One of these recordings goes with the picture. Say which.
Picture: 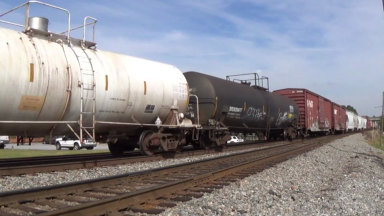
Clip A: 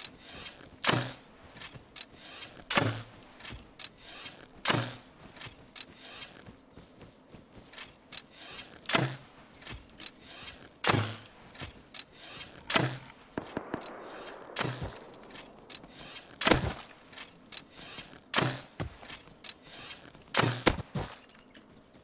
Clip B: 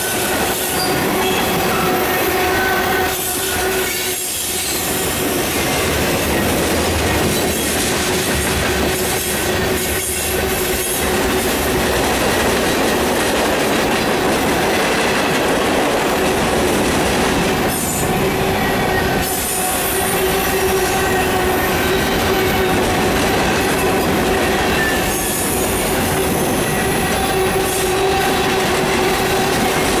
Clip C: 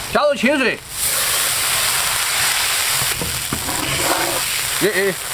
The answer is B